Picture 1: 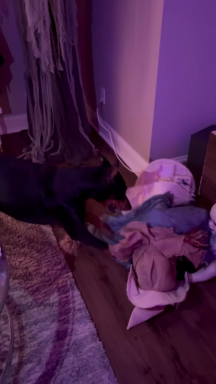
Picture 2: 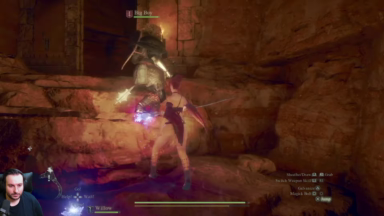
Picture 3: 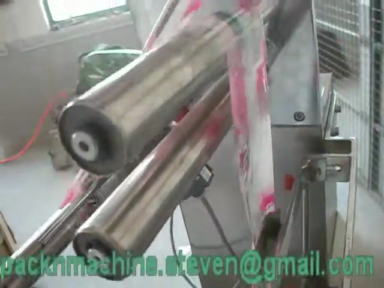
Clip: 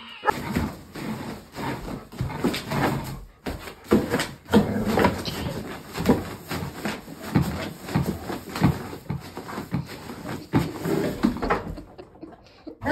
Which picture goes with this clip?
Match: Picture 1